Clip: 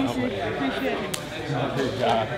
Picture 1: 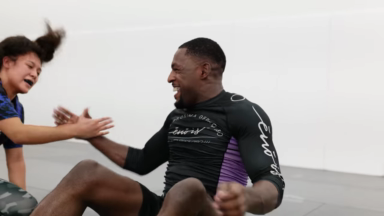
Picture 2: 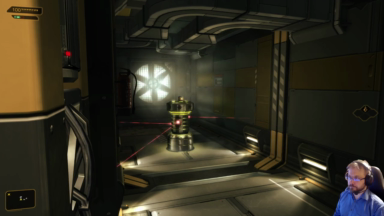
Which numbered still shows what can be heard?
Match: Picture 1